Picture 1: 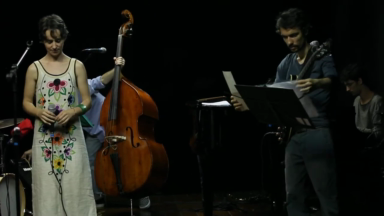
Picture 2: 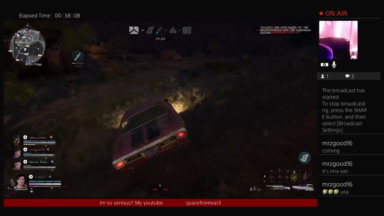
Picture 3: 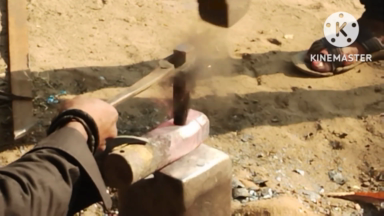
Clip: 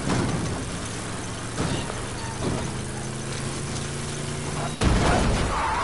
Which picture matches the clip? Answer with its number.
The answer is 2